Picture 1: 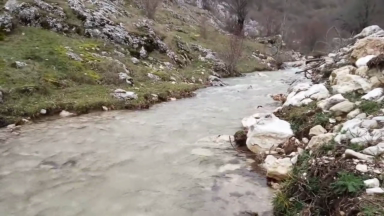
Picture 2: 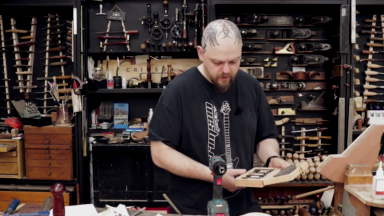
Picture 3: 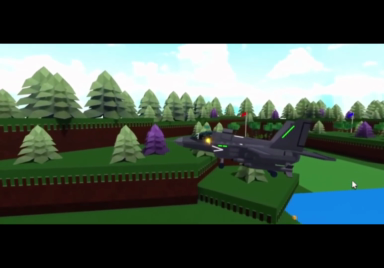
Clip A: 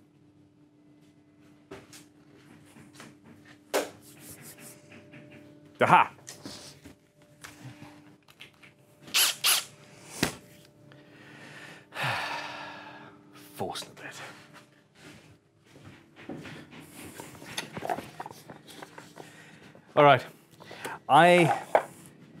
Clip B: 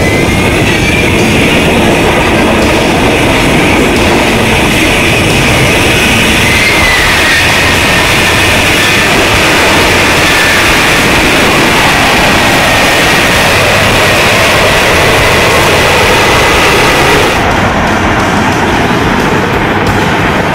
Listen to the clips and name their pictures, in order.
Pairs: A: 2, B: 3